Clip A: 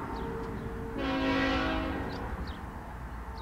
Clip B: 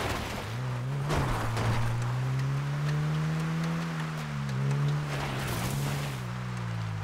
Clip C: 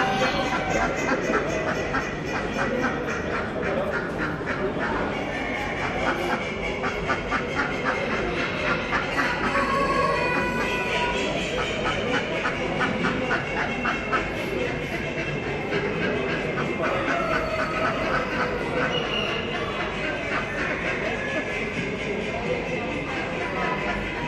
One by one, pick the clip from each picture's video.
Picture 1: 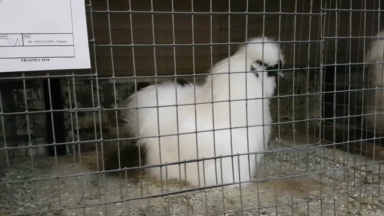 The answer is C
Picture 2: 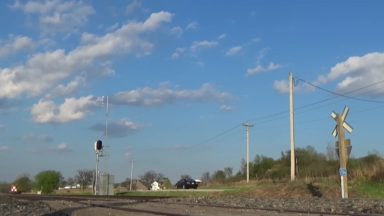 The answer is A